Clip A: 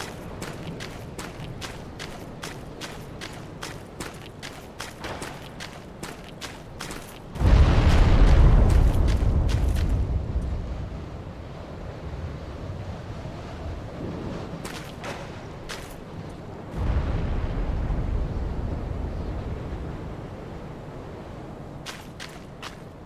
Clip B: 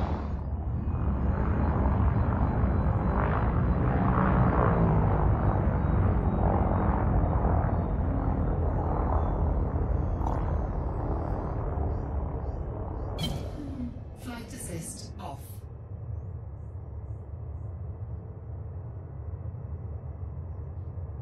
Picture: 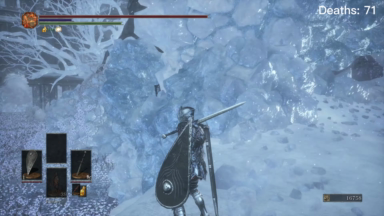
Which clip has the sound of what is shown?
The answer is A